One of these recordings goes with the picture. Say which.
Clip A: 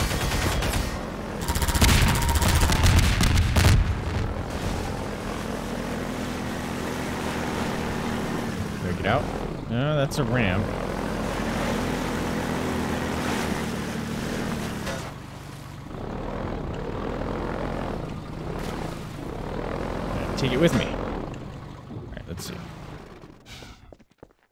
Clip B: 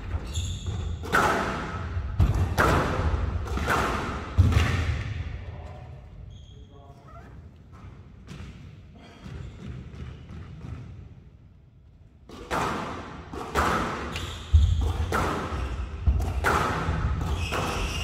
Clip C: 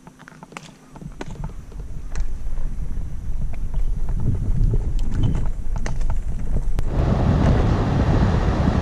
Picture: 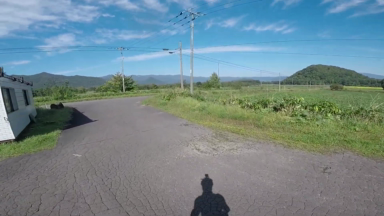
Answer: C